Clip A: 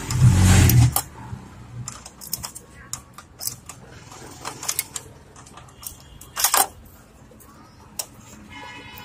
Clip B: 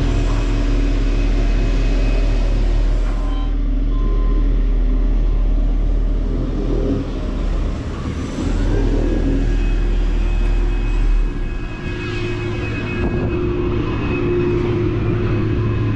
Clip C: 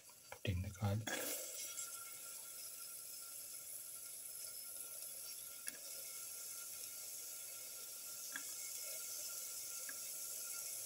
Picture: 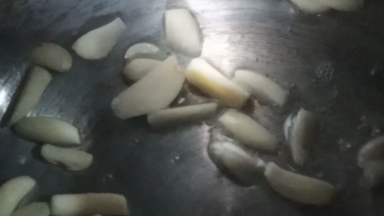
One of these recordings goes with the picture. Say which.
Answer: C